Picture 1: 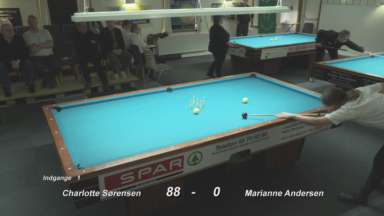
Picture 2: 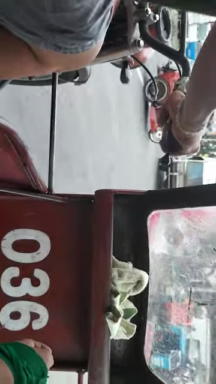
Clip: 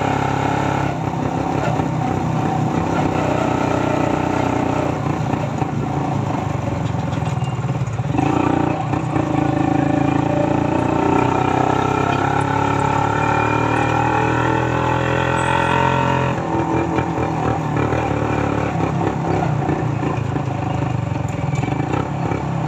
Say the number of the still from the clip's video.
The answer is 2